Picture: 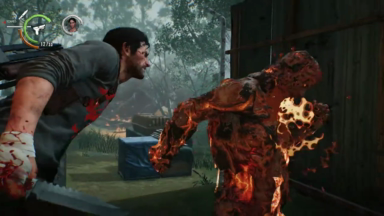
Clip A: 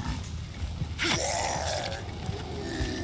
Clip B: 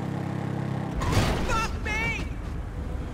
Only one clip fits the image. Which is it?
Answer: A